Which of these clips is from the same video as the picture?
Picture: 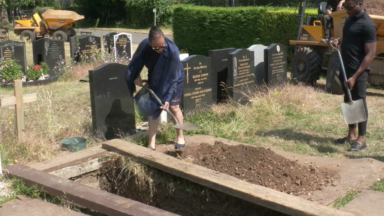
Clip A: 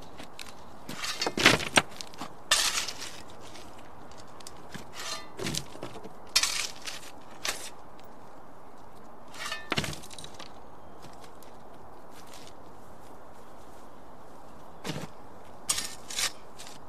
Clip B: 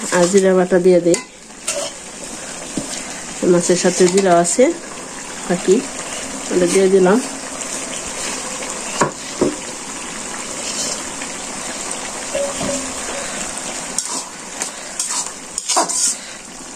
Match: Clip A